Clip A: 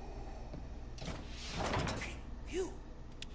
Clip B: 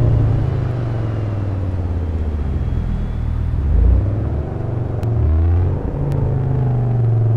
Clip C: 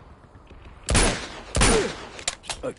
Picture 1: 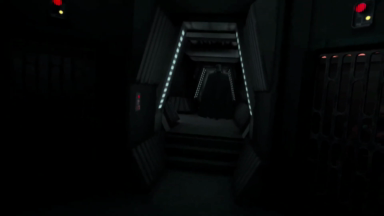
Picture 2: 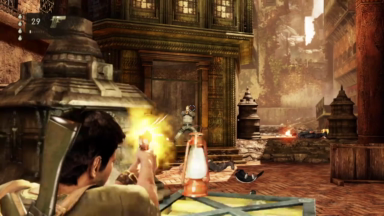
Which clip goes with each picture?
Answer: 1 A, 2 C